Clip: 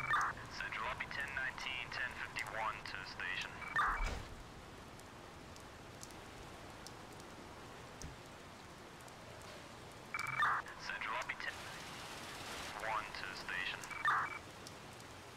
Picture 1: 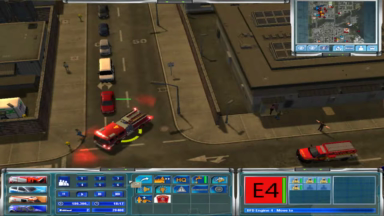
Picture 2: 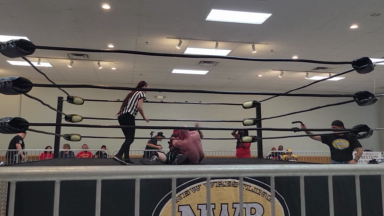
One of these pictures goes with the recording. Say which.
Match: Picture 1